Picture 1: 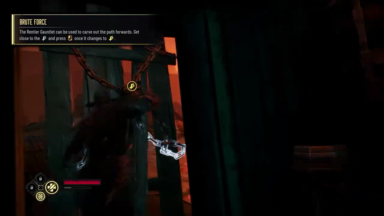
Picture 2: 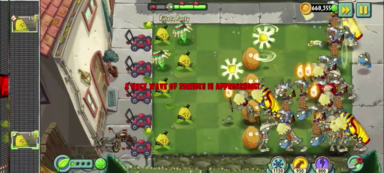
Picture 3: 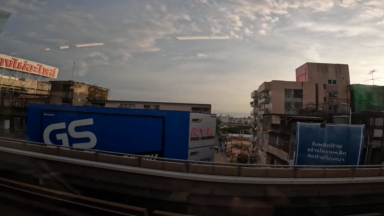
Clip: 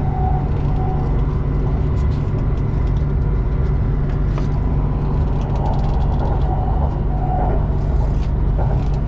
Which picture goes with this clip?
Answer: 3